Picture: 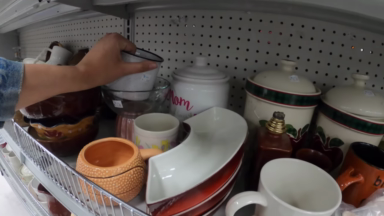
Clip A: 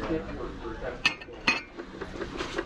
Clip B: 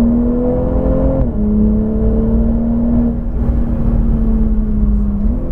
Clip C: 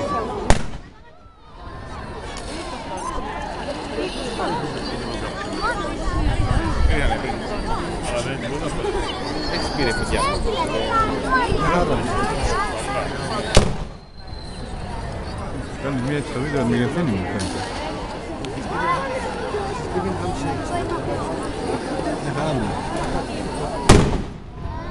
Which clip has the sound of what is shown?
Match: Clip A